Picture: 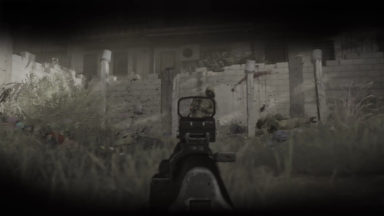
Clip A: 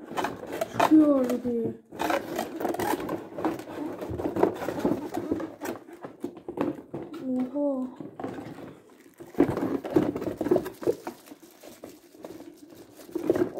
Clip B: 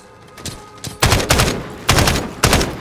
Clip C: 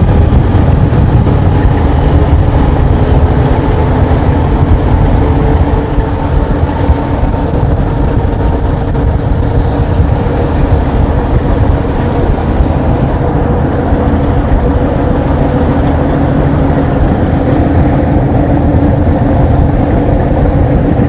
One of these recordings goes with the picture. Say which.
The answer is B